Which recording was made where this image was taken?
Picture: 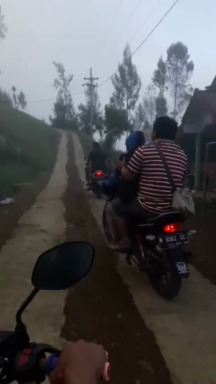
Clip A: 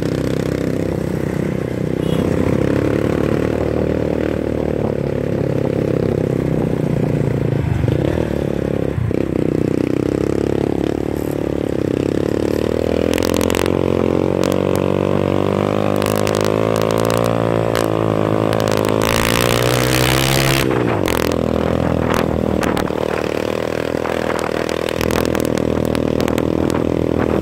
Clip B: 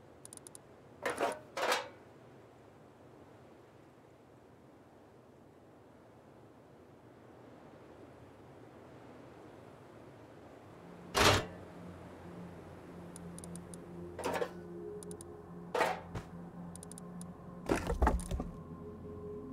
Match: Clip A